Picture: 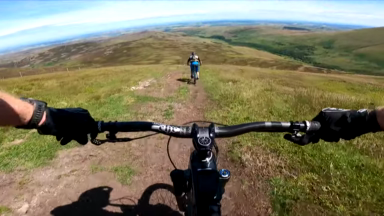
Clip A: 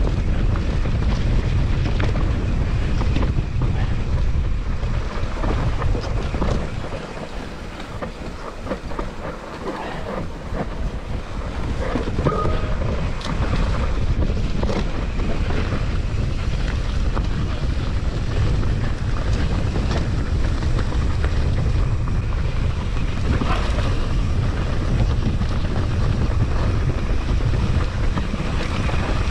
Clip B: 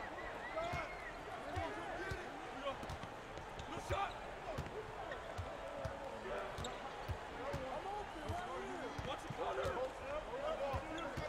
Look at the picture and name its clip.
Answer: A